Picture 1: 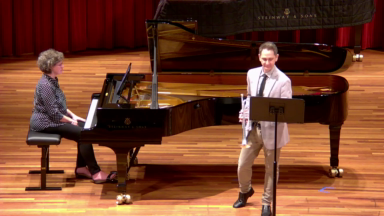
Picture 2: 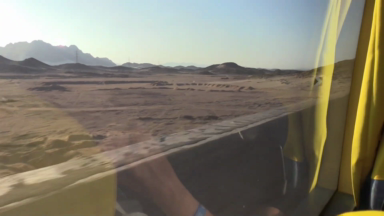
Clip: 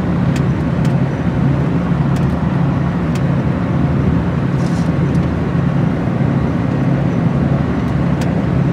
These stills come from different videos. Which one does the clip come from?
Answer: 2